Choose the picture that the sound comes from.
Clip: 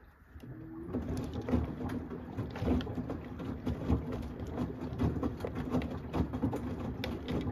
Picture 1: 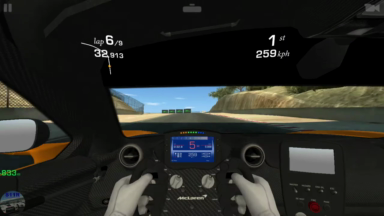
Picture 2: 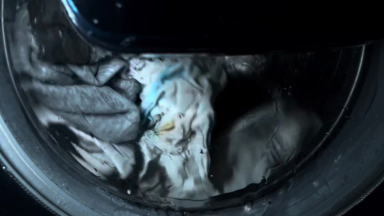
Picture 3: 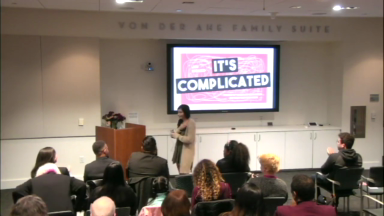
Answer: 2